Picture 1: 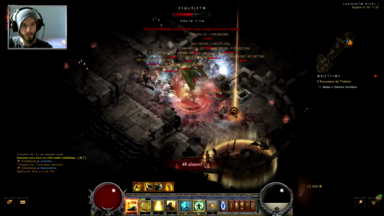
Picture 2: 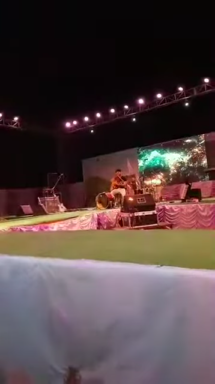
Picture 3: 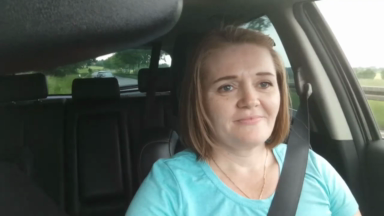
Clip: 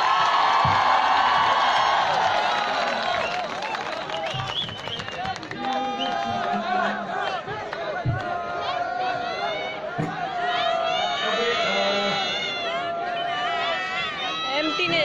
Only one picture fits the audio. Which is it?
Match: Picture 2